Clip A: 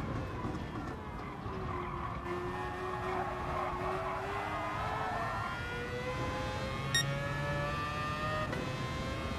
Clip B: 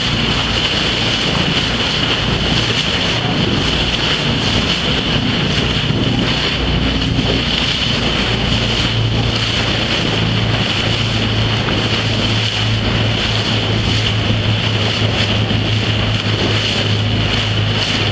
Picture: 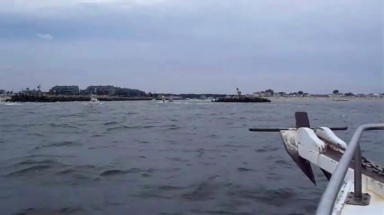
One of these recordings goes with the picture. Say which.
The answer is B